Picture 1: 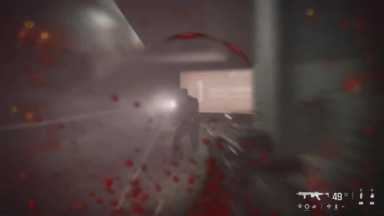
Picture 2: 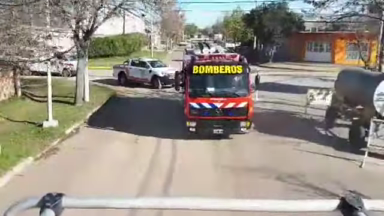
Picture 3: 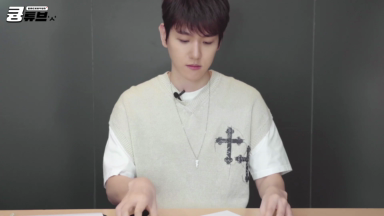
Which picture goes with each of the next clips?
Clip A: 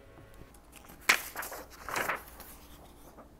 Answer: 3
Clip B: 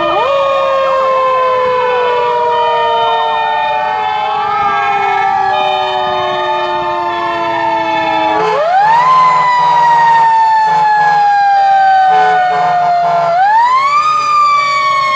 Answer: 2